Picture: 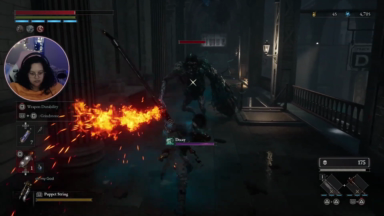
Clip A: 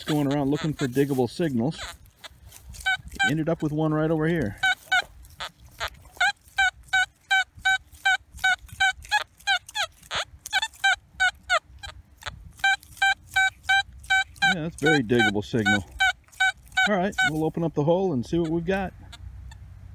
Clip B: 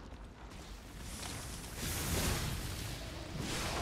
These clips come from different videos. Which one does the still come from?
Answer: B